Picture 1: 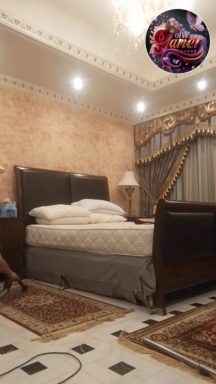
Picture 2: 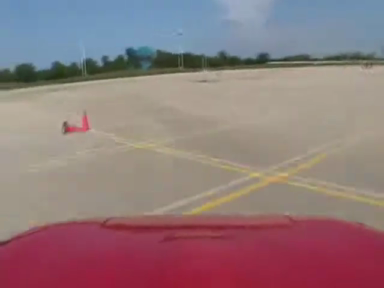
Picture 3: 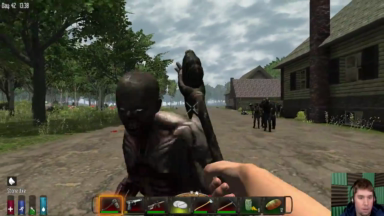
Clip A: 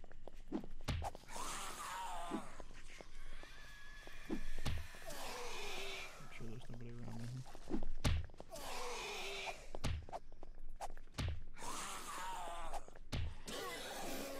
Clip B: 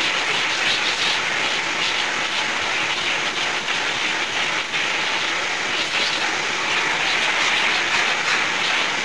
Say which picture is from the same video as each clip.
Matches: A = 3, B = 1